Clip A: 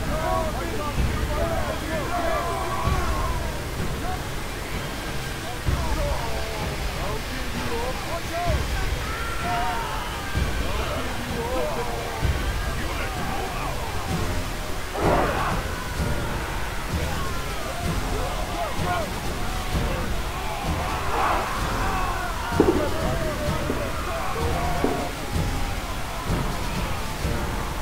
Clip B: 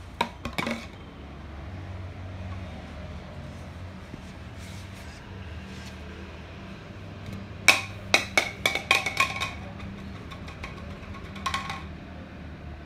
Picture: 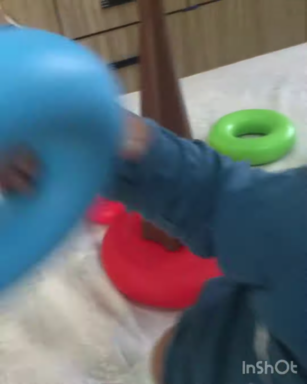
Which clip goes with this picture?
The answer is B